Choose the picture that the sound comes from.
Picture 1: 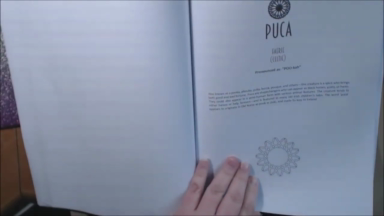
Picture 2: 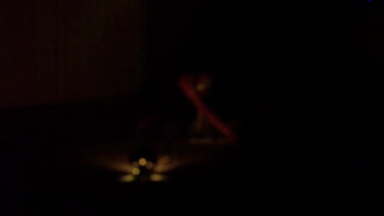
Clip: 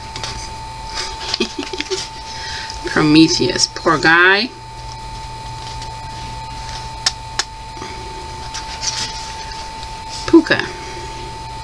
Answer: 1